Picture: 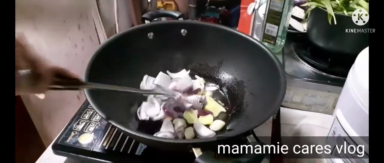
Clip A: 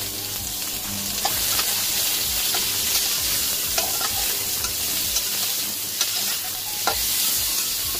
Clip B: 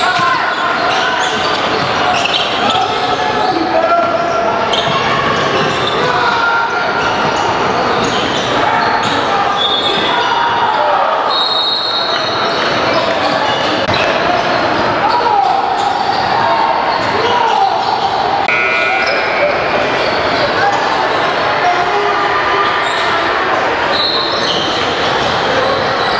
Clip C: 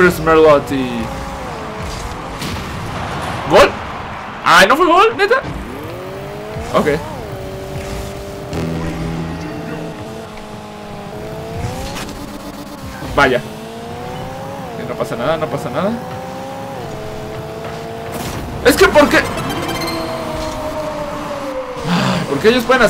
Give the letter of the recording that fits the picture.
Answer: A